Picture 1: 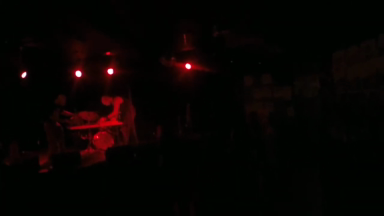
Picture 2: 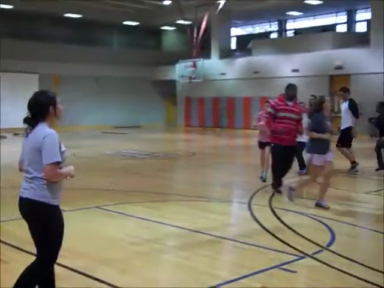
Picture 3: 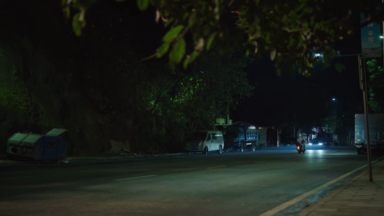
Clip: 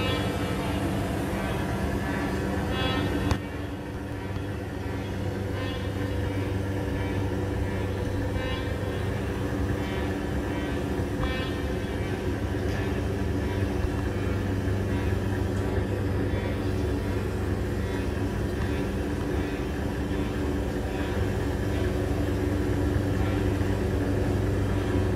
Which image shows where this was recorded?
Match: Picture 1